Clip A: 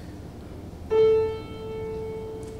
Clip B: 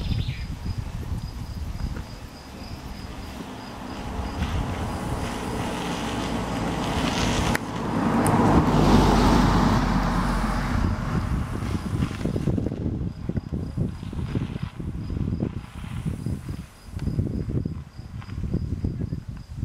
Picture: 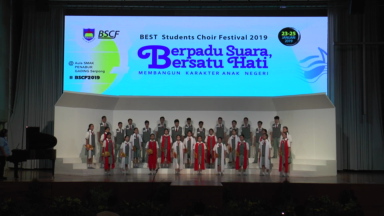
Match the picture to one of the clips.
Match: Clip A